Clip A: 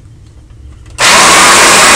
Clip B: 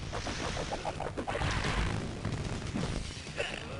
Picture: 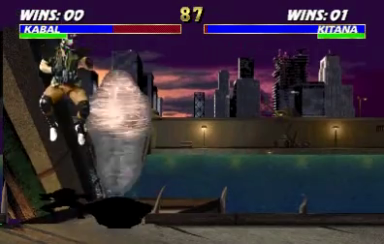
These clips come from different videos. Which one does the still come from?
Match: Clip B